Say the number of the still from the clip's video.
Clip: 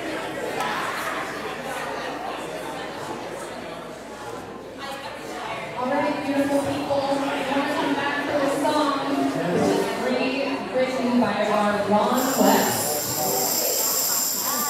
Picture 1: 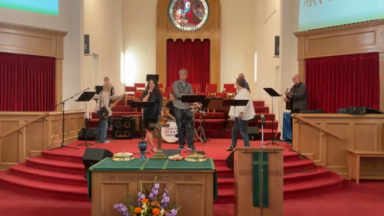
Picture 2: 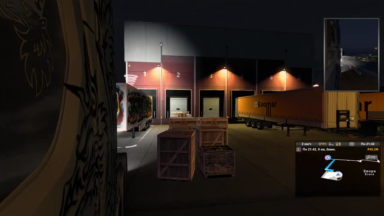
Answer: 1